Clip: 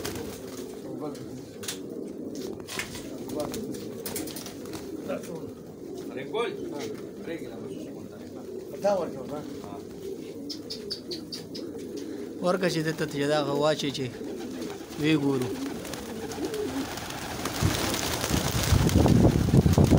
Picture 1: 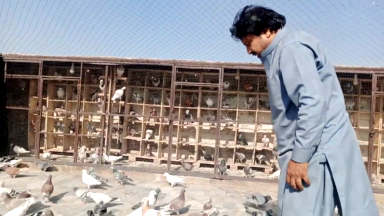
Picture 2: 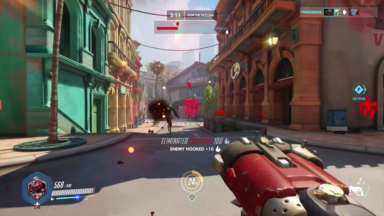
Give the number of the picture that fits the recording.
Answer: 1